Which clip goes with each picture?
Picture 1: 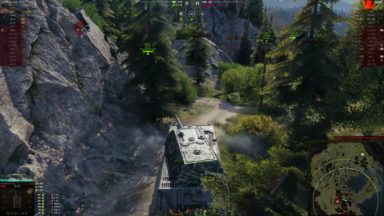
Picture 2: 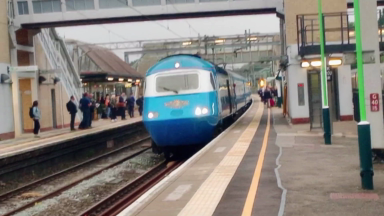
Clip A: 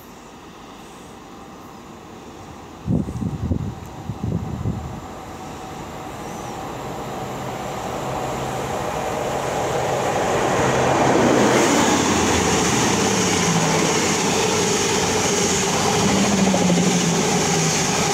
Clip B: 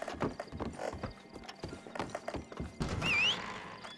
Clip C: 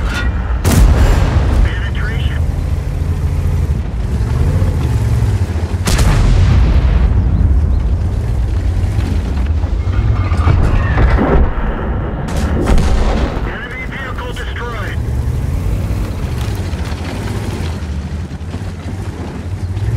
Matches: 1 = C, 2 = A